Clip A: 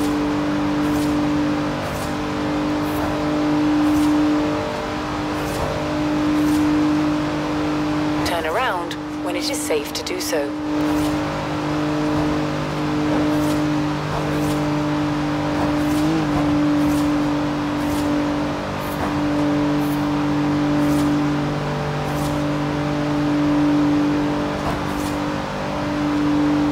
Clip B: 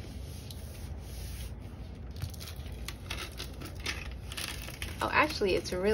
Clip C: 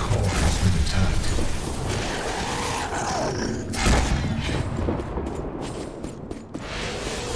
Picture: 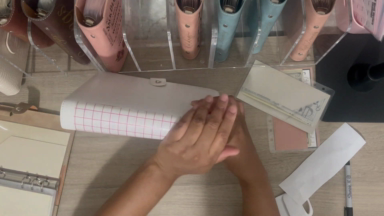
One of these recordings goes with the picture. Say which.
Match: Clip B